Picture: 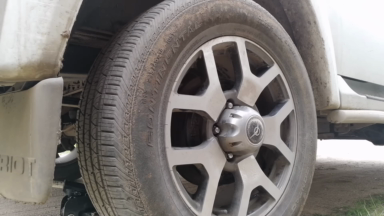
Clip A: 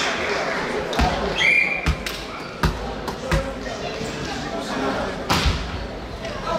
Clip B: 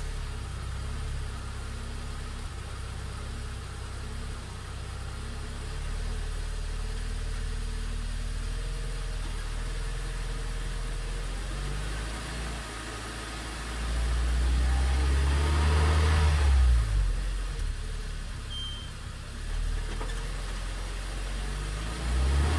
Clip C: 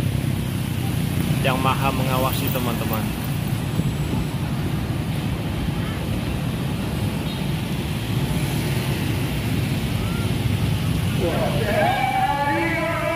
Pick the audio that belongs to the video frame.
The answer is B